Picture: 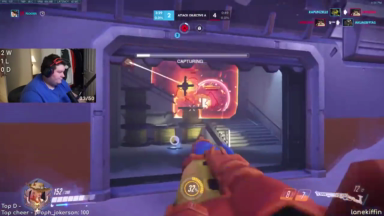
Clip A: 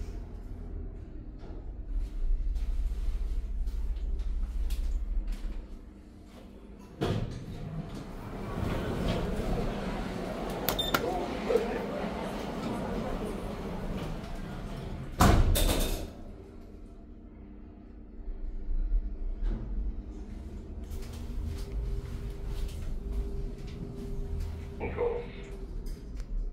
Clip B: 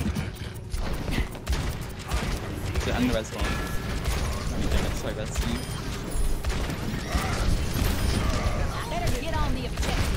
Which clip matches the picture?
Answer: B